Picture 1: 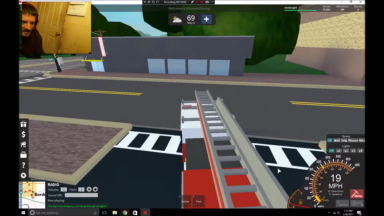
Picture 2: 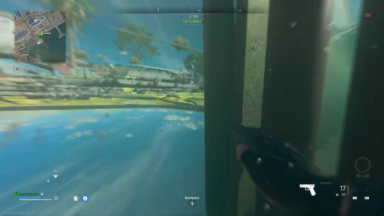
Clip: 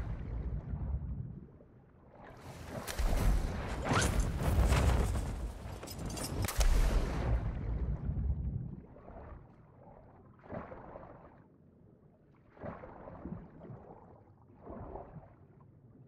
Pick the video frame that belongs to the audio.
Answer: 2